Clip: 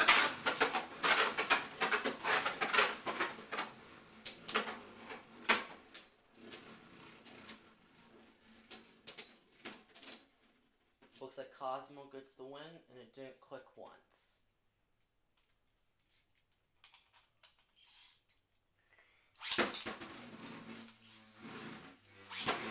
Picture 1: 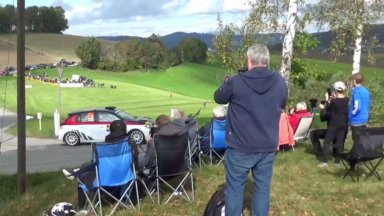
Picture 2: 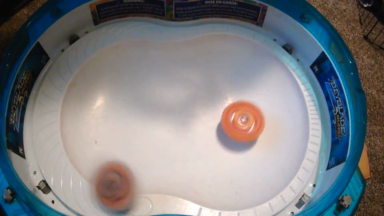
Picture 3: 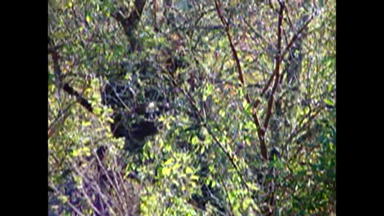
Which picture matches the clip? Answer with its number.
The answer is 2